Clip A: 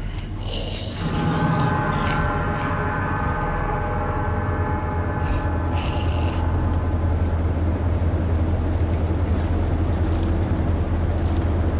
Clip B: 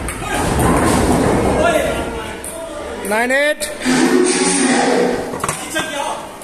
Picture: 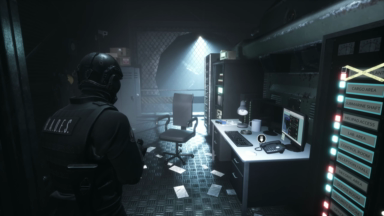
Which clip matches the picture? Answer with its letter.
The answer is A